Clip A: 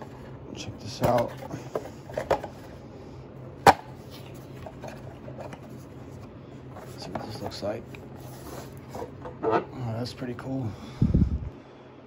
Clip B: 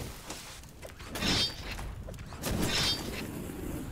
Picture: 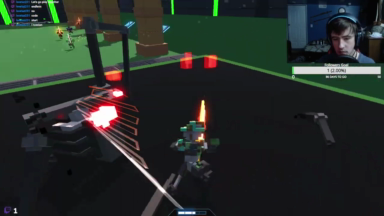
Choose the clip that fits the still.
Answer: B